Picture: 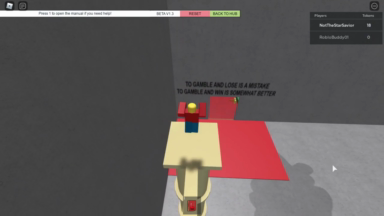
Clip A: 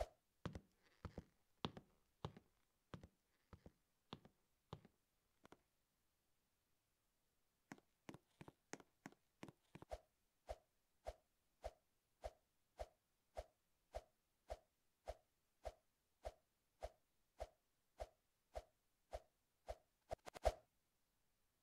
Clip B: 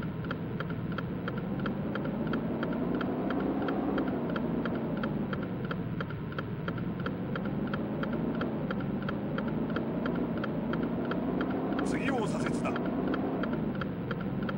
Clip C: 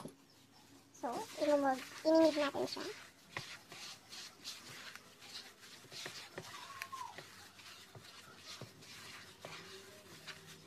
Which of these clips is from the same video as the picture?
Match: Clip A